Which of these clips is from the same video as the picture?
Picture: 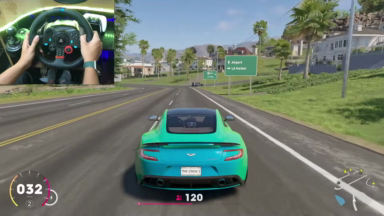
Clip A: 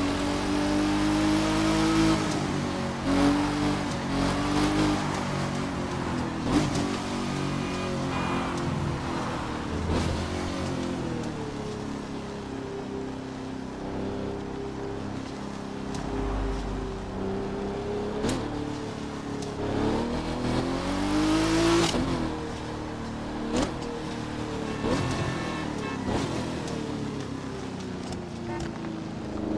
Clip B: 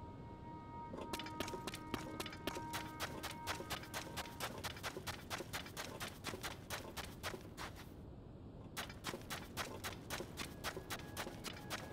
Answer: A